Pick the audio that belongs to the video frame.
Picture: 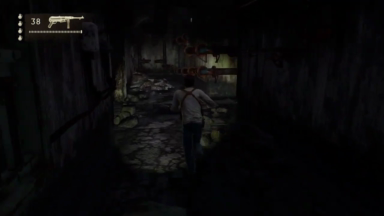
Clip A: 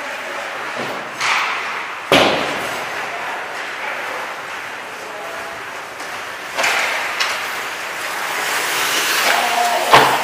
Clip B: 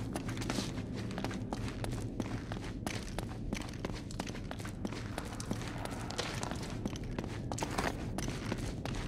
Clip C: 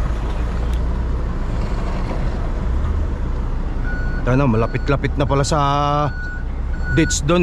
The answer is B